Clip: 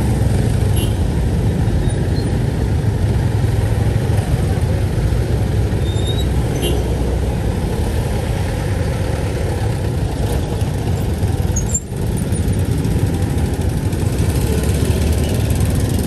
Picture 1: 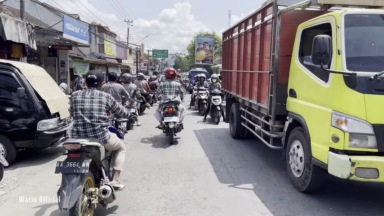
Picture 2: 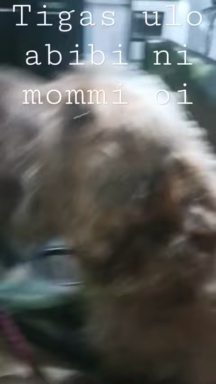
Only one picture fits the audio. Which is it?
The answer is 1